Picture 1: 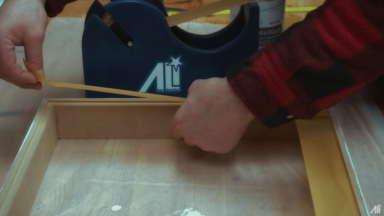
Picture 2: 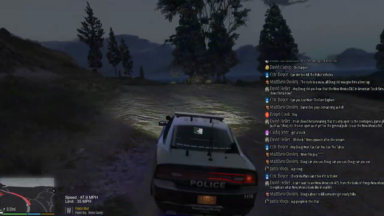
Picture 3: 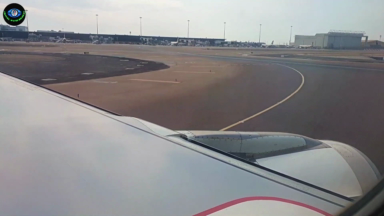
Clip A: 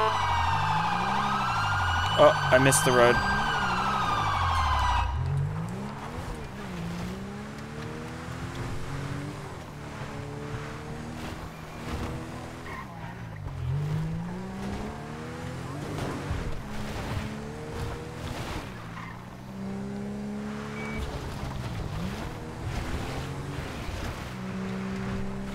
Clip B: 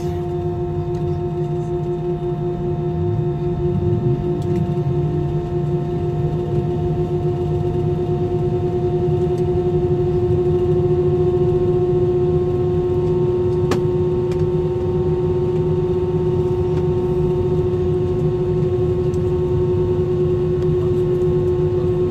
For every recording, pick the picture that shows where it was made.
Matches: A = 2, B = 3